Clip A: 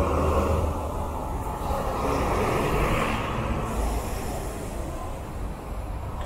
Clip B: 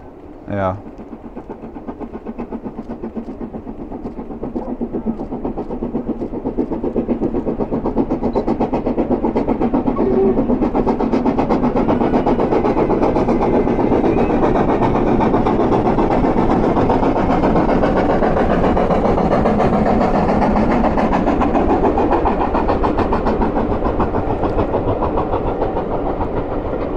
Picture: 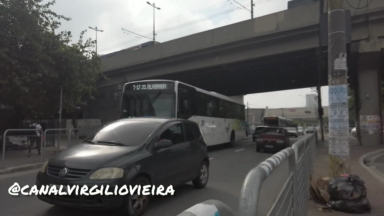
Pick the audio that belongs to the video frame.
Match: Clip A